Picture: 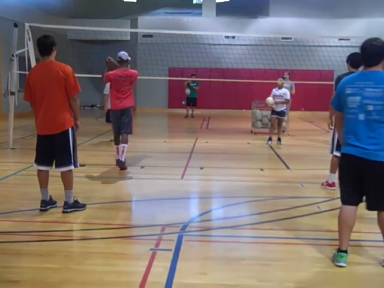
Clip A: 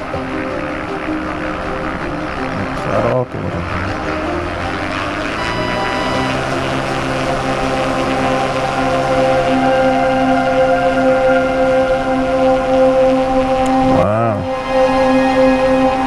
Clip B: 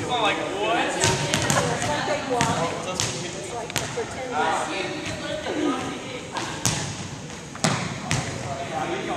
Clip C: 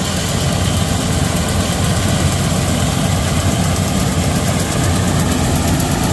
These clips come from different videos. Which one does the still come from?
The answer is B